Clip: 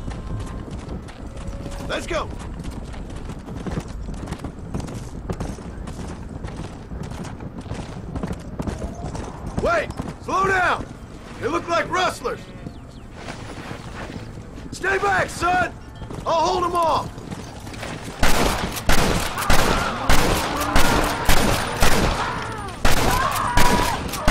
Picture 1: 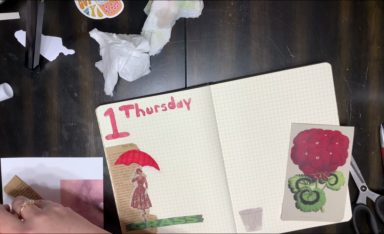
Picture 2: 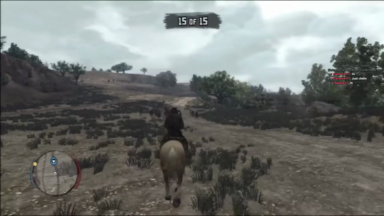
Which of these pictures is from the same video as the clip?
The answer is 2